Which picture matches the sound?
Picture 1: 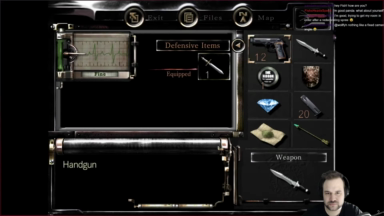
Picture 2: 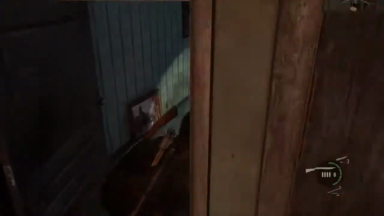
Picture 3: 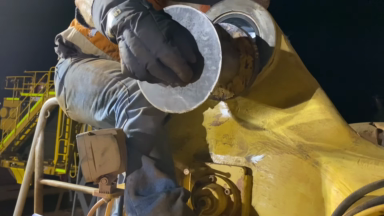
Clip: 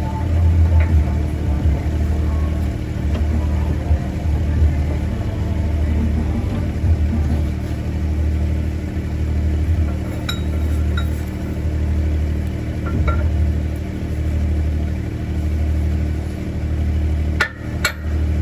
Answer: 3